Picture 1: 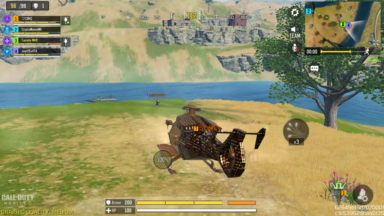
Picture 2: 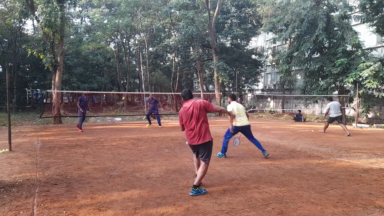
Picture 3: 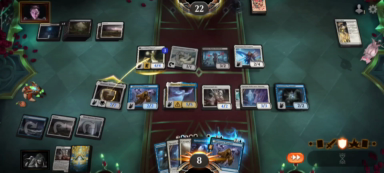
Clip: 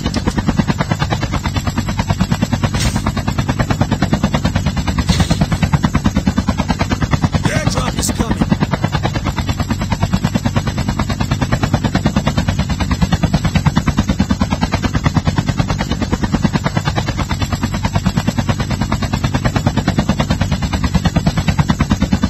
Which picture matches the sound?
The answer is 1